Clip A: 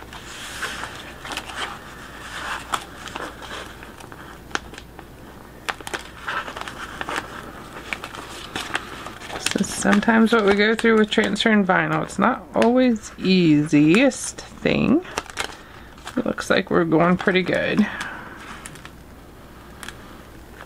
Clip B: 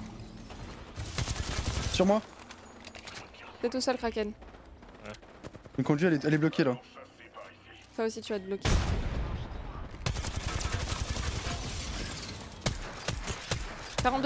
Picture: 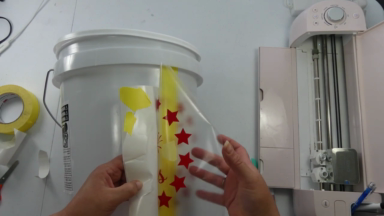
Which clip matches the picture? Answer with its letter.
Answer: A